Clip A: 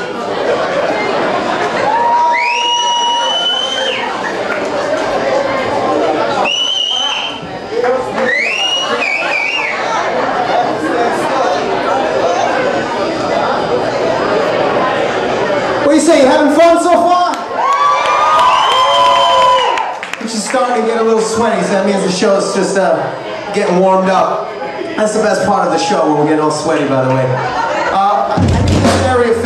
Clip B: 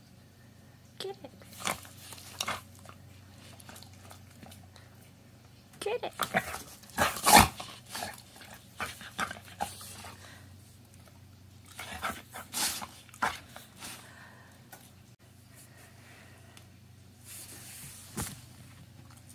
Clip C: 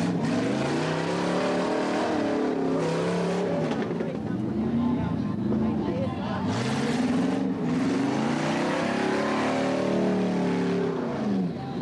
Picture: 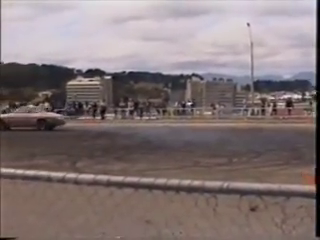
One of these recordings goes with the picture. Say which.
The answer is C